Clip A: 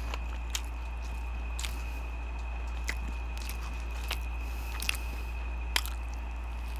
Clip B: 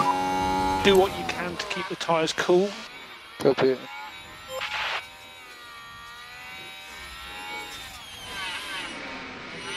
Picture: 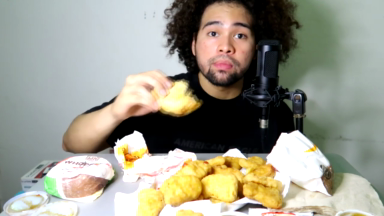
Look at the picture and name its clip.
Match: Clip A